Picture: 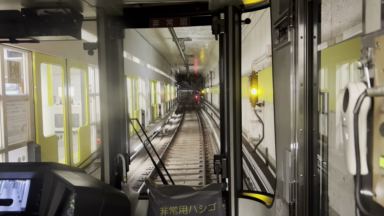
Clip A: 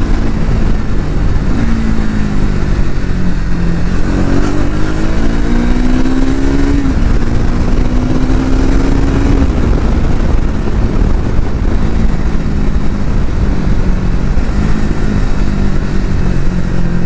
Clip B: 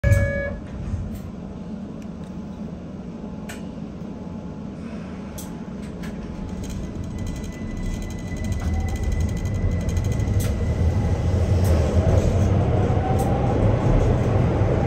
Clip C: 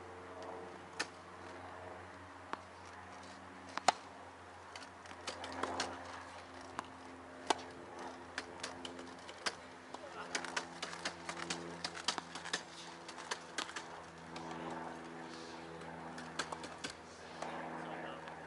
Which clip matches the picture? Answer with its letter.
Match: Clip B